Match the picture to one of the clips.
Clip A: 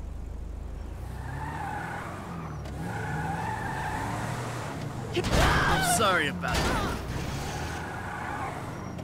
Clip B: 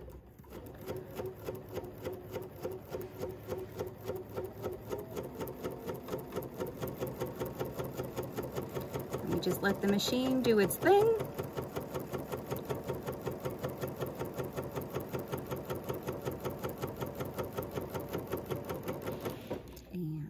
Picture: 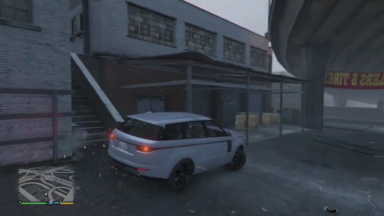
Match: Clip A